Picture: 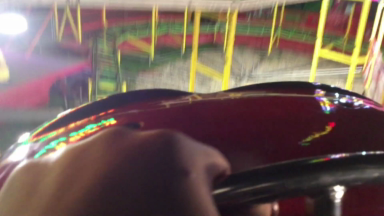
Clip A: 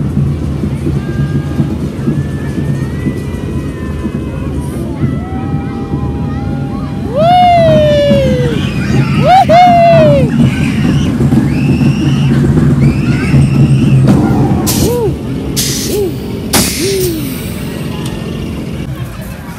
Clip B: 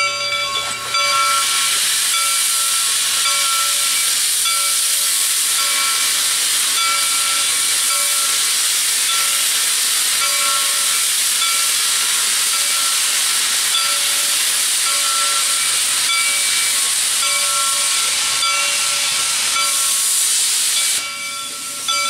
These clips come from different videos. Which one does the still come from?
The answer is A